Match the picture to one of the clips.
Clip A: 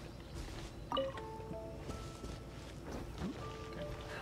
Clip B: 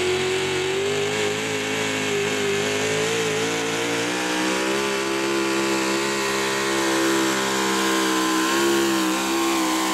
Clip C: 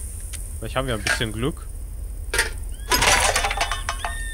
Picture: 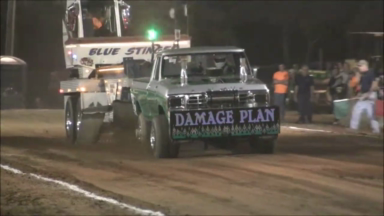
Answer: B